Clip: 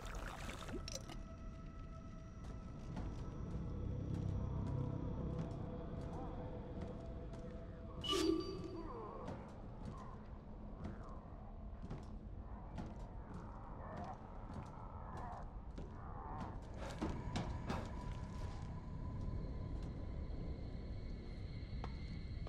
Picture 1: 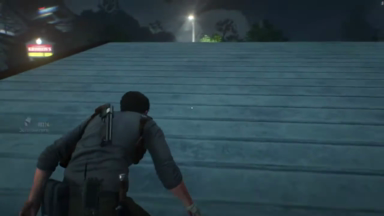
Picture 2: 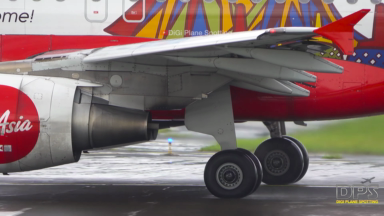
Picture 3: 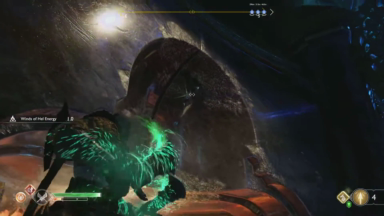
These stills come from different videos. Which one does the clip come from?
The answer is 1